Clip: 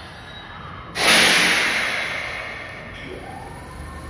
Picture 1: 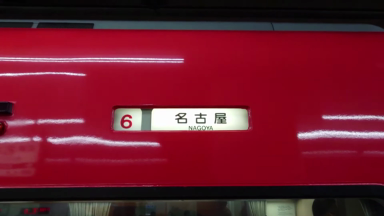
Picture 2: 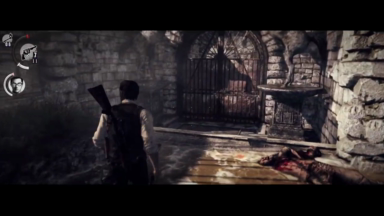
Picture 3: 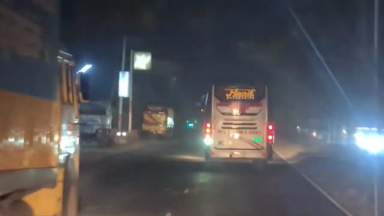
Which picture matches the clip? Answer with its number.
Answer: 1